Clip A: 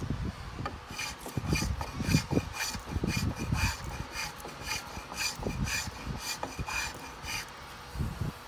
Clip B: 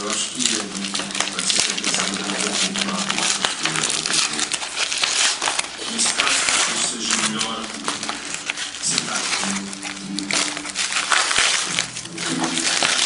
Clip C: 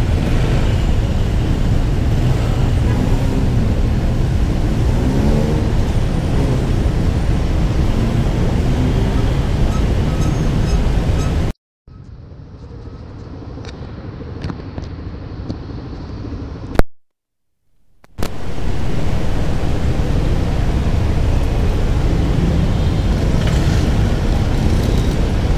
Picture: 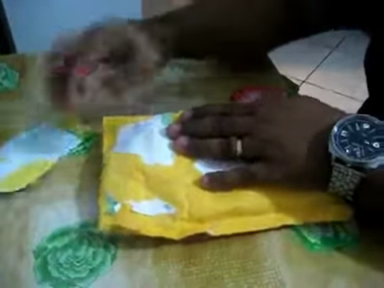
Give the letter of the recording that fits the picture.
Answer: B